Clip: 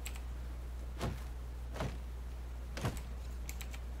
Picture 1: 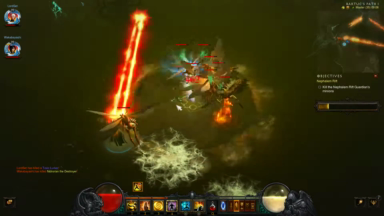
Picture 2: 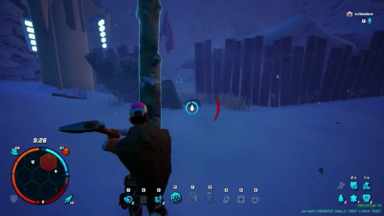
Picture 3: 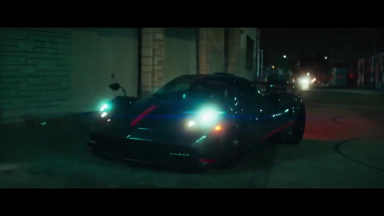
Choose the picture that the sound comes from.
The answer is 2